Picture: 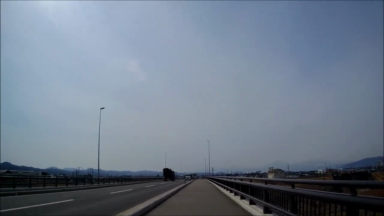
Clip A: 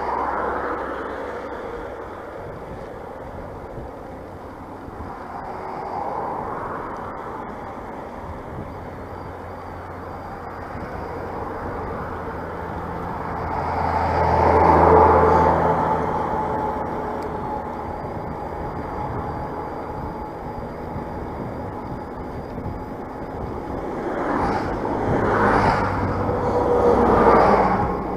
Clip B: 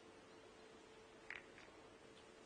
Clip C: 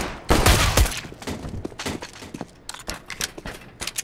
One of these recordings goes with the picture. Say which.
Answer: A